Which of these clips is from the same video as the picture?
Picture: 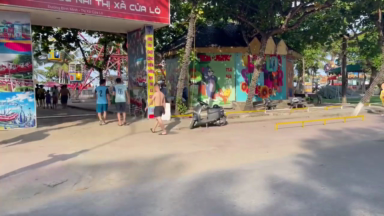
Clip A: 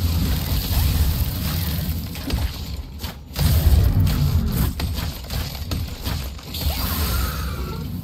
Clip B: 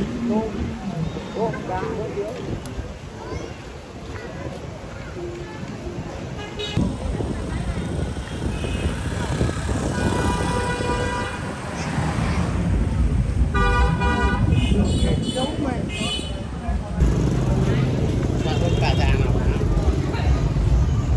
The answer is B